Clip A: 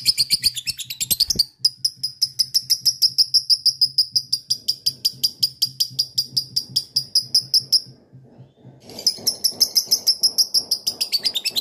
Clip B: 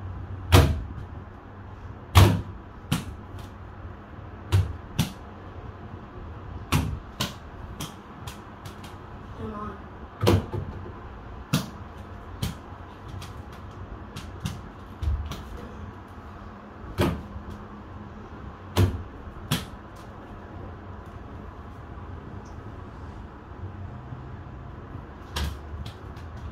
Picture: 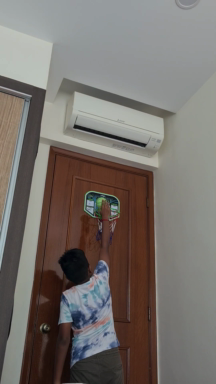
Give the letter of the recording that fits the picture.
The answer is B